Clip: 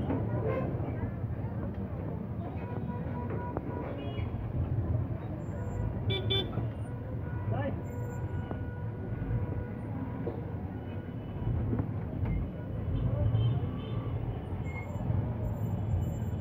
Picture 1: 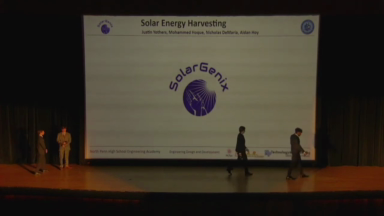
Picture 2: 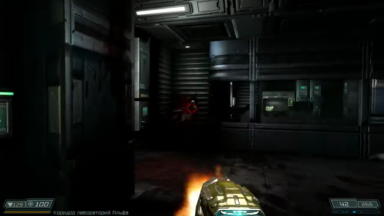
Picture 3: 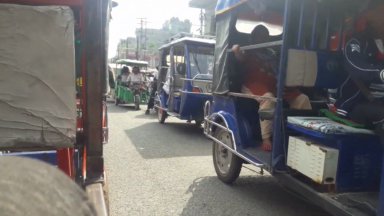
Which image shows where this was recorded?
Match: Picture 3